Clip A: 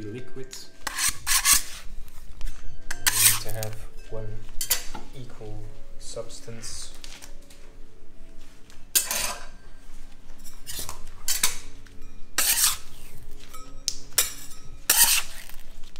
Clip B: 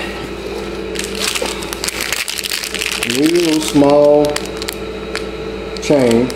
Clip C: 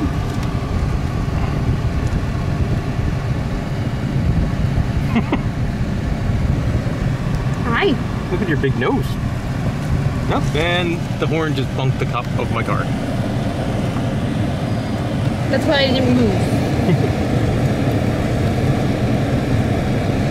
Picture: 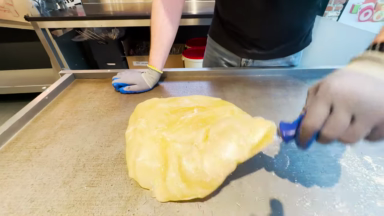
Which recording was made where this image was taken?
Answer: A